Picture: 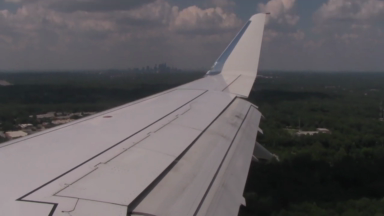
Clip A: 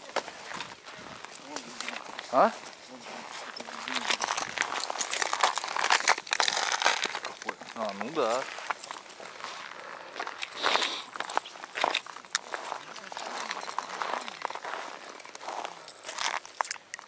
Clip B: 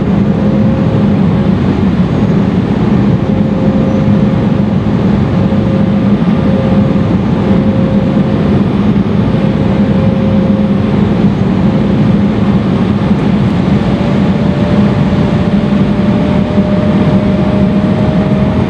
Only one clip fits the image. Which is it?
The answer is B